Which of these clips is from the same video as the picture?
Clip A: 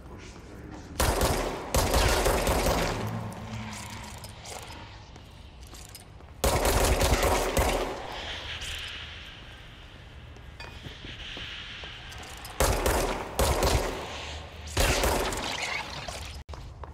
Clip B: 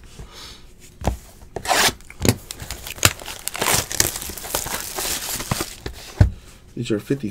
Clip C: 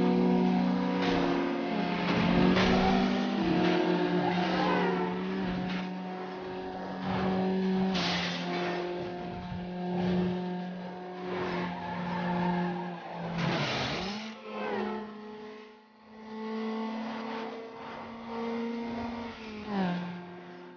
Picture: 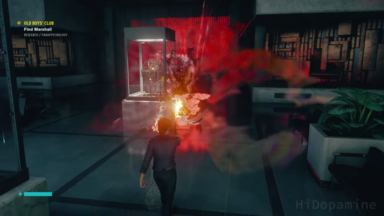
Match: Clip A